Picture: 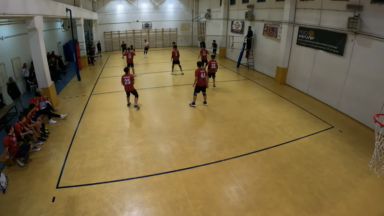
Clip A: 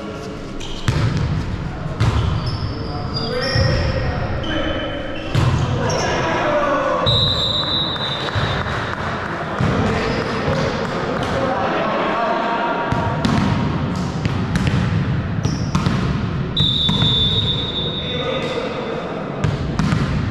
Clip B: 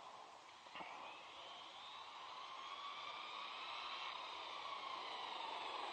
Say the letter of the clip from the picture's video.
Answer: A